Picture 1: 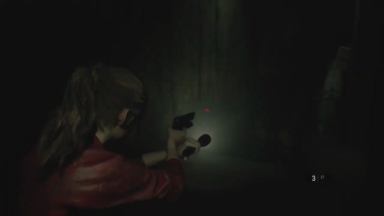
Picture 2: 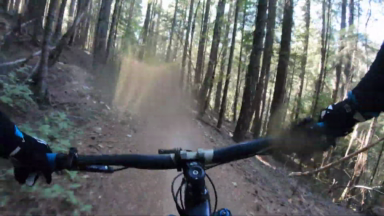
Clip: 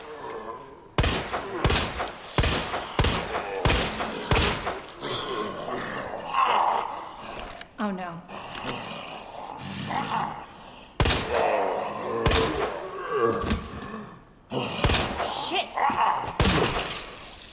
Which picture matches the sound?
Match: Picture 1